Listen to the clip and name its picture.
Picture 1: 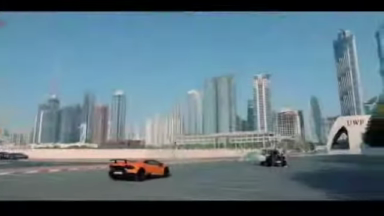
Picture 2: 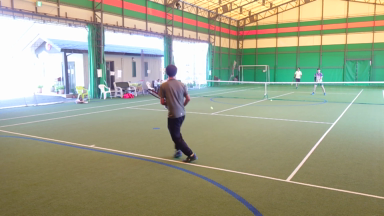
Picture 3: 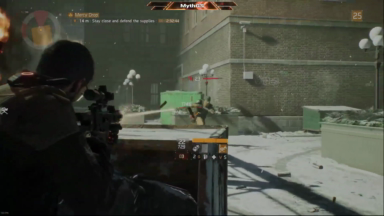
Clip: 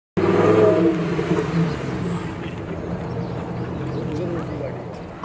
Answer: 1